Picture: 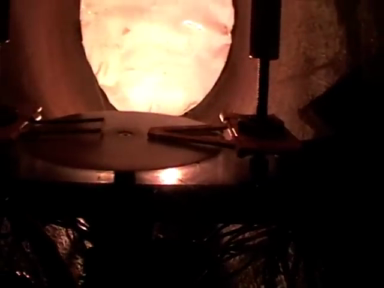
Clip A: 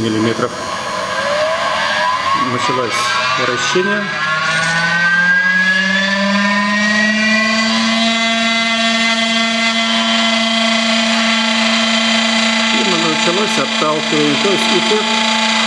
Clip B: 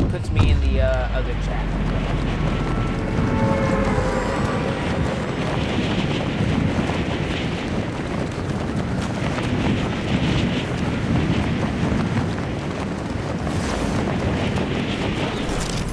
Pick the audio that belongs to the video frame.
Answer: A